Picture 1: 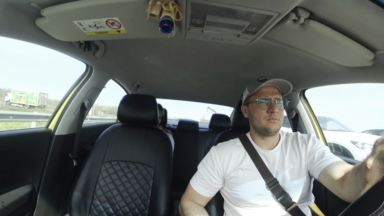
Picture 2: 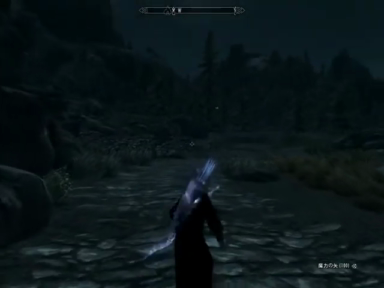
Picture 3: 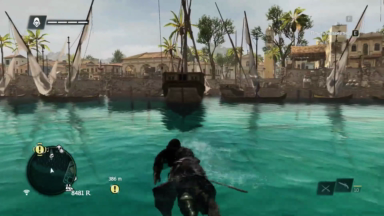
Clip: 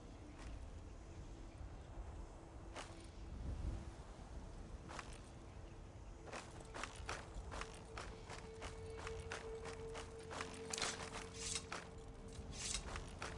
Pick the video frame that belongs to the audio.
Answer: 2